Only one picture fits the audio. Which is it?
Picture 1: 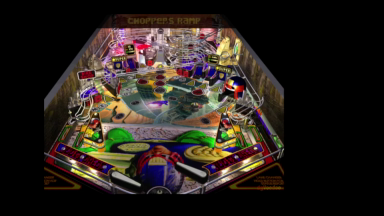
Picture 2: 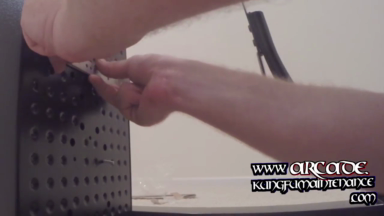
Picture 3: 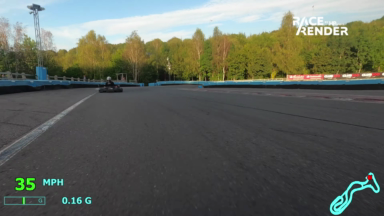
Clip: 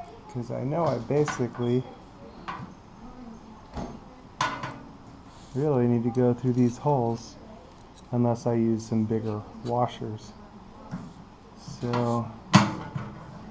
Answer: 2